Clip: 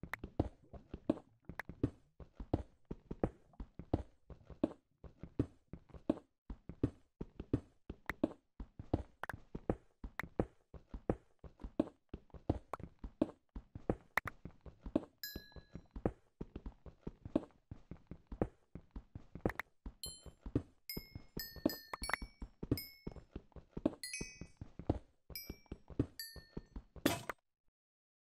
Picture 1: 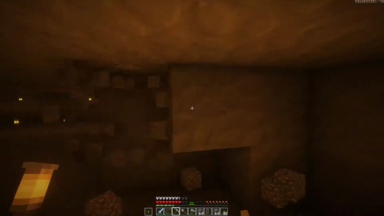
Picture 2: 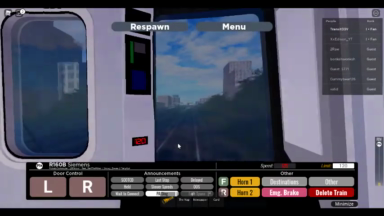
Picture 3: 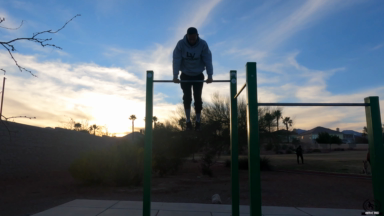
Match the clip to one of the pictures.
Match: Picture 1